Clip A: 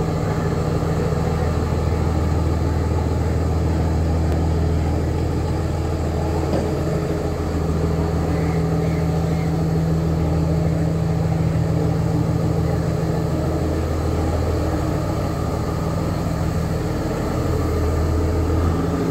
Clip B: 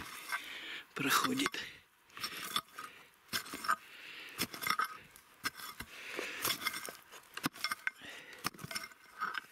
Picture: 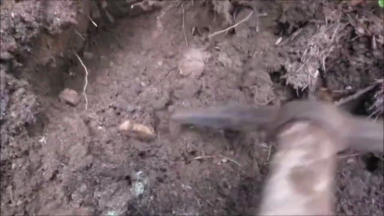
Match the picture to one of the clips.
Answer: B